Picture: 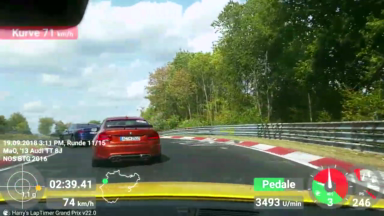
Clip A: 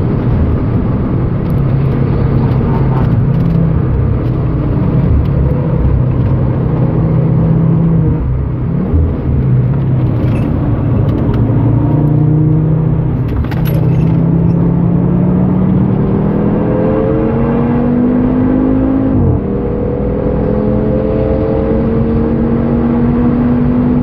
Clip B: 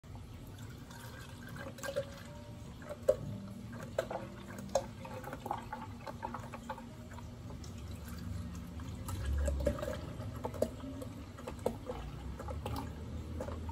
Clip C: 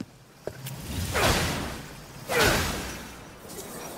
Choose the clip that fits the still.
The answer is A